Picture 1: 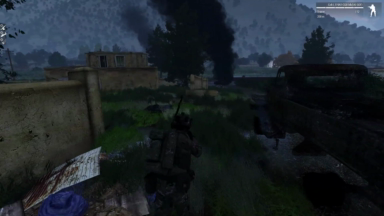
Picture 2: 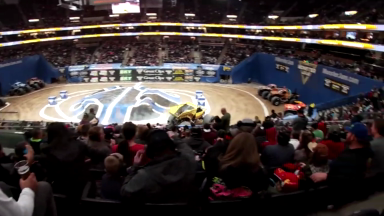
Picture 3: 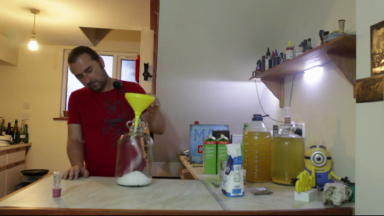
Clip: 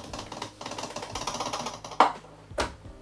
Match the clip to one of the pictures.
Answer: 3